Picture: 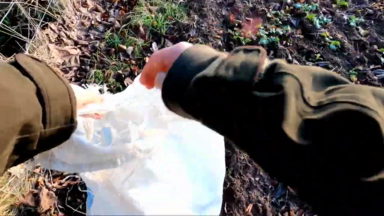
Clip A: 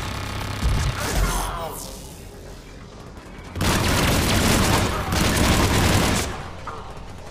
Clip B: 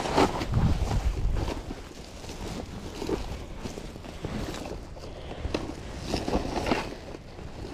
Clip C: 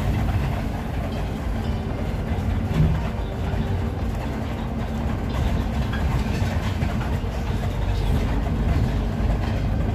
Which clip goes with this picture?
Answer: B